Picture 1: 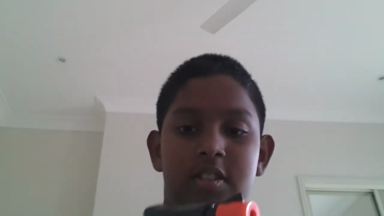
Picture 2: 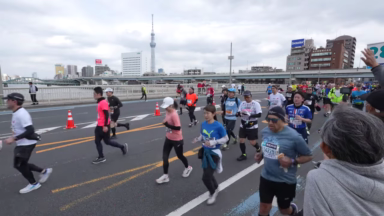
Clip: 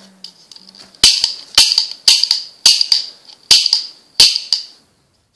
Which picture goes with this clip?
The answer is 1